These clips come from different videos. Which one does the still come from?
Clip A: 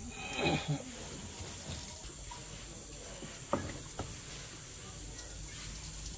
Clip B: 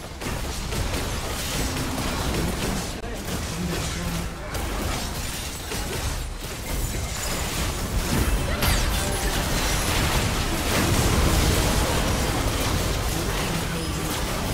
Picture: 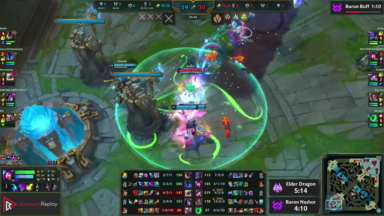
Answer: B